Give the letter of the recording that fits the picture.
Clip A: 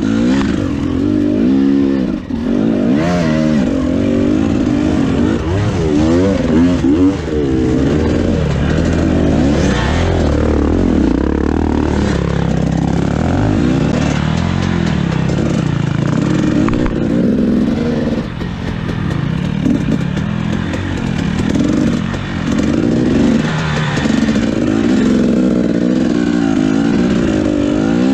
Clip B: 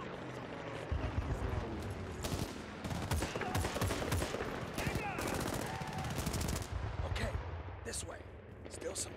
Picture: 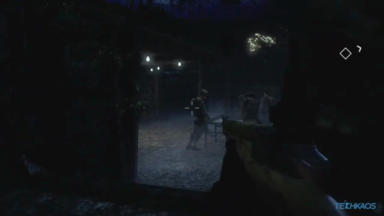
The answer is B